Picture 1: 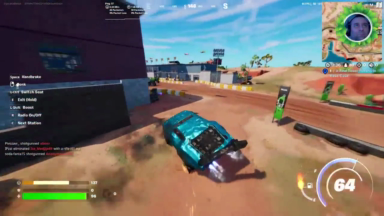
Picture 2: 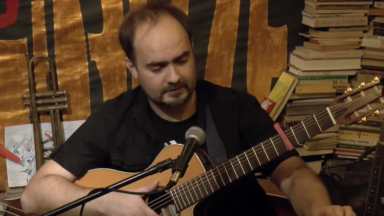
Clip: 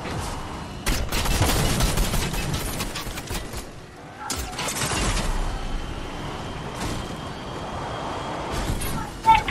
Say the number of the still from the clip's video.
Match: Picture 1